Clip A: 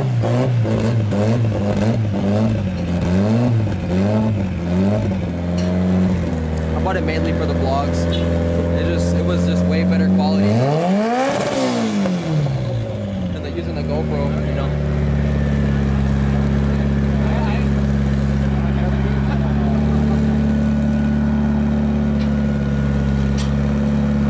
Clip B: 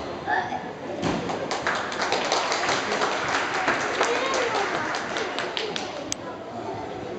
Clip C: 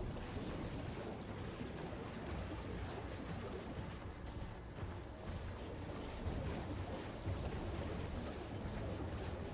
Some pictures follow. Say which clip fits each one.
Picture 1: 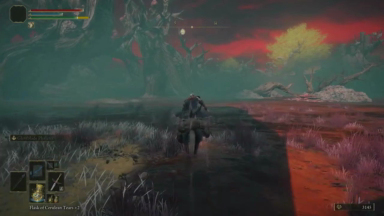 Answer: C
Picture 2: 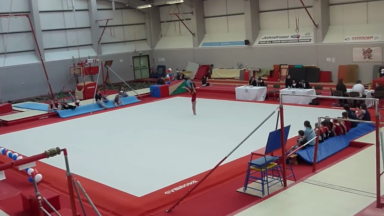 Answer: B